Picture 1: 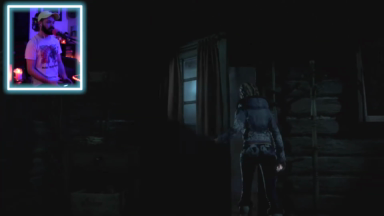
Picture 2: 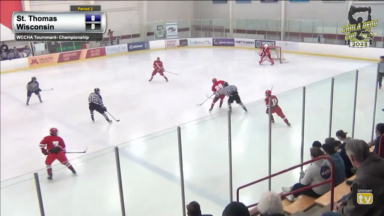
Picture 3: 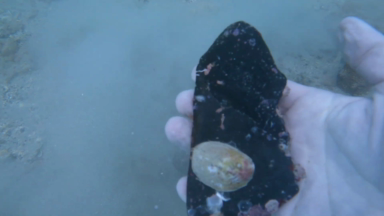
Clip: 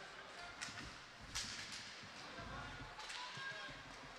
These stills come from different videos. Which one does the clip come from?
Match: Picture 2